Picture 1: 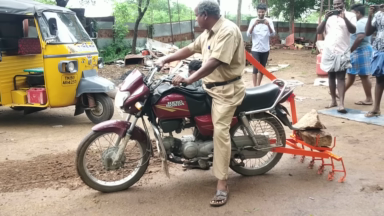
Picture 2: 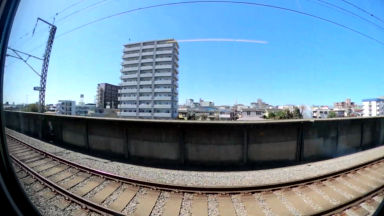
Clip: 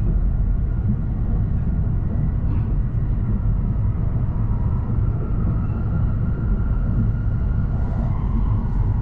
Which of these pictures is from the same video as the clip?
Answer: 2